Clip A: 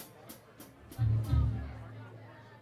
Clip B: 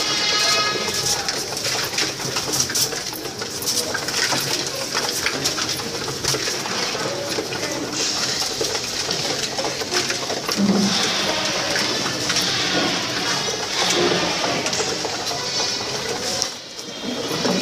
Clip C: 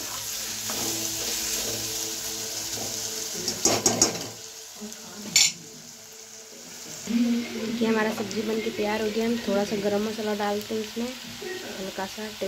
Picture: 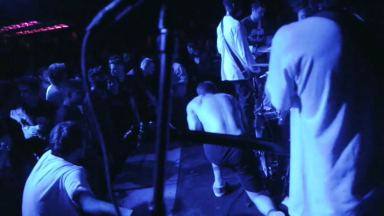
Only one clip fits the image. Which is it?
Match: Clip A